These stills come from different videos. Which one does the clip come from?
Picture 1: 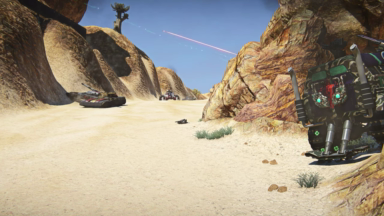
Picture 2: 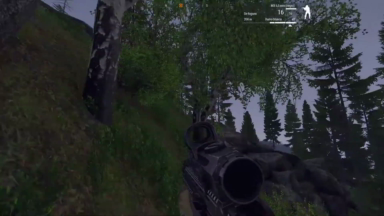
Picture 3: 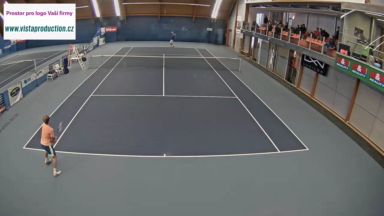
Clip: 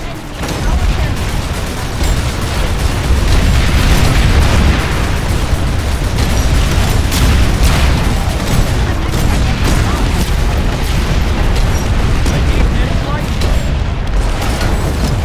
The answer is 1